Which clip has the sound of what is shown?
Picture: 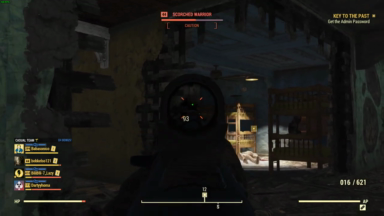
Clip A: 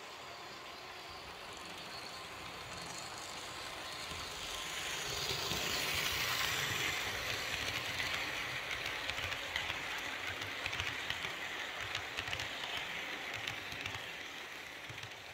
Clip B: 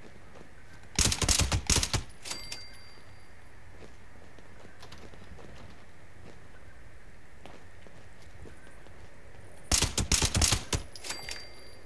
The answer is B